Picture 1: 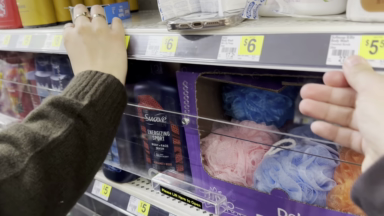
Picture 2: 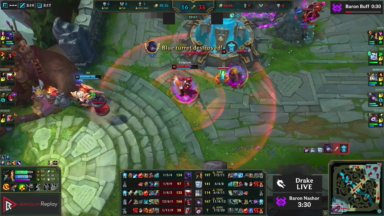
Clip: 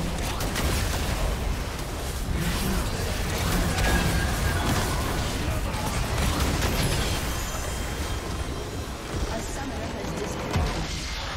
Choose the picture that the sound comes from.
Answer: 2